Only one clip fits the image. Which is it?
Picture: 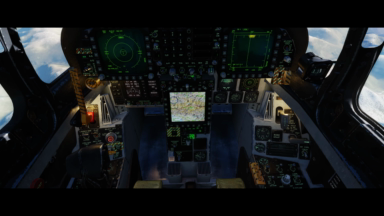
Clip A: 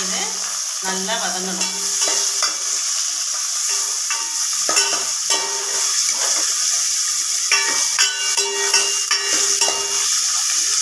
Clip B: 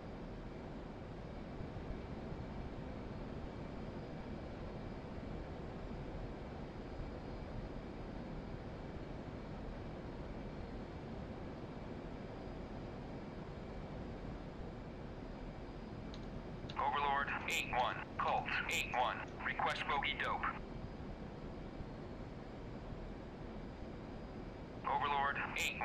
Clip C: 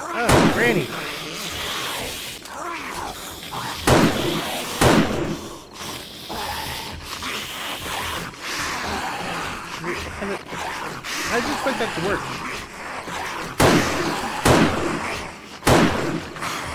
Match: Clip B